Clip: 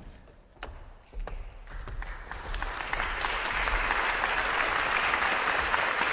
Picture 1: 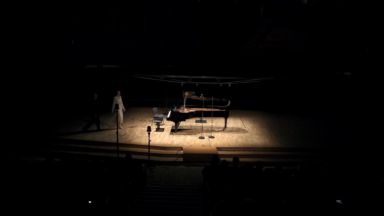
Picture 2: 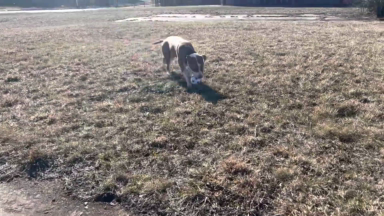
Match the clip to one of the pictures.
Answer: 1